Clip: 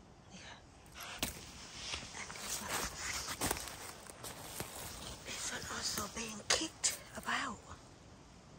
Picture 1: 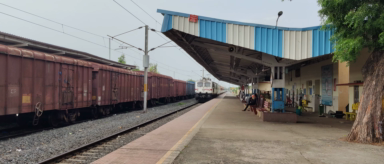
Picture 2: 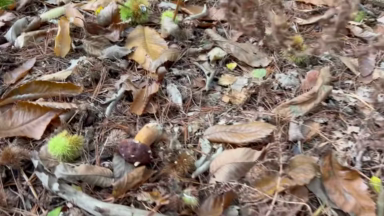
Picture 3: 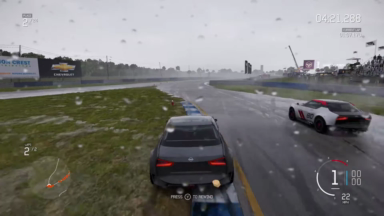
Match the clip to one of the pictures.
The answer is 2